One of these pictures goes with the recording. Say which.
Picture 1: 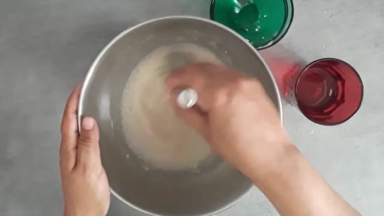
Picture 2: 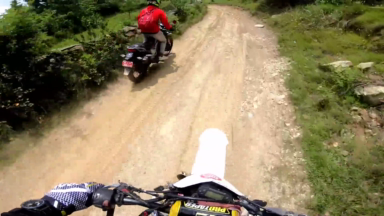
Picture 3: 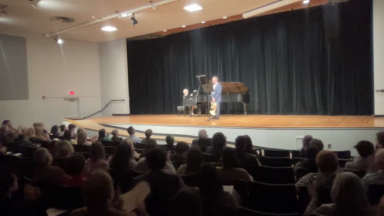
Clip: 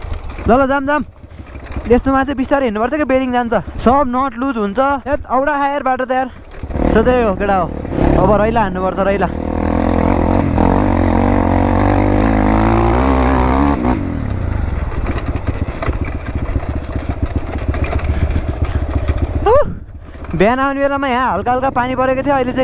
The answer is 2